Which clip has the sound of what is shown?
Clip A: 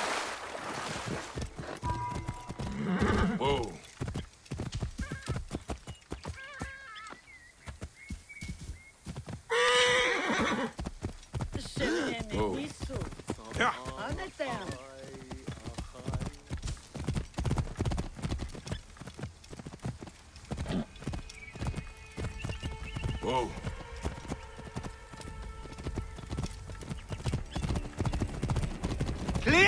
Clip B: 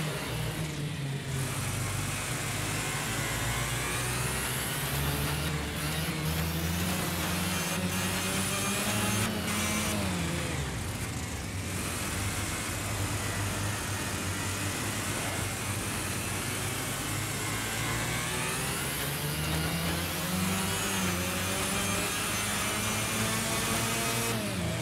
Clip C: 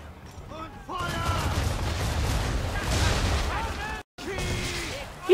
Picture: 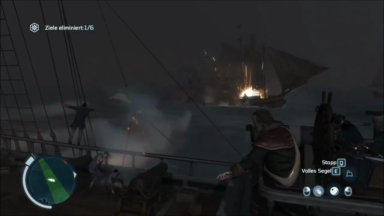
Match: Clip C